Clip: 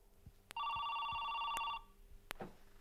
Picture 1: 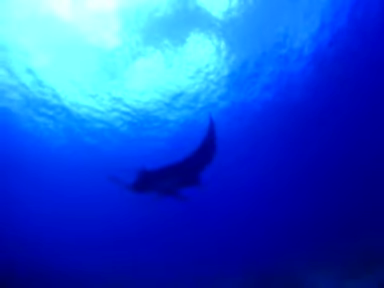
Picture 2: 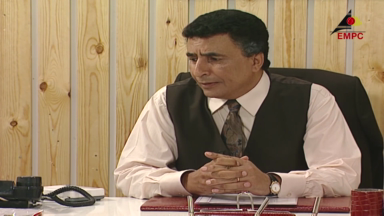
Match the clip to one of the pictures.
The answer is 2